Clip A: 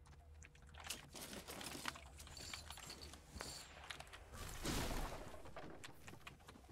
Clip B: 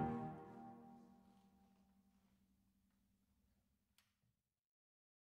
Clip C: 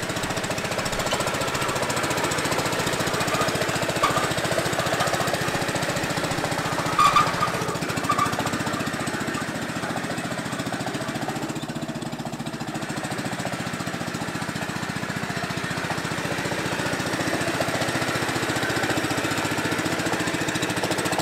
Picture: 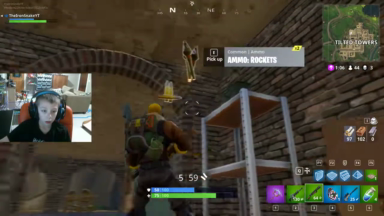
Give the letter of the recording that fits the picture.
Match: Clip A